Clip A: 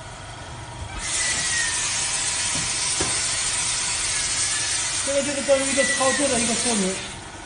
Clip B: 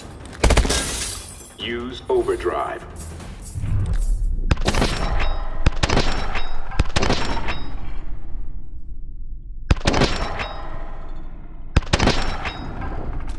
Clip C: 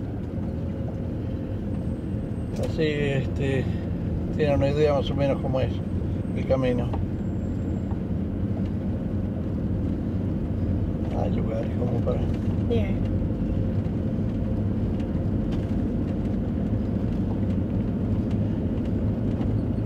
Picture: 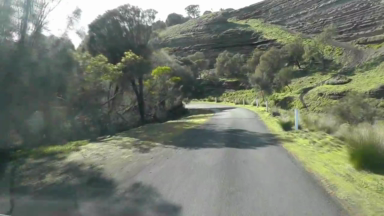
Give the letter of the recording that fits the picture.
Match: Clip C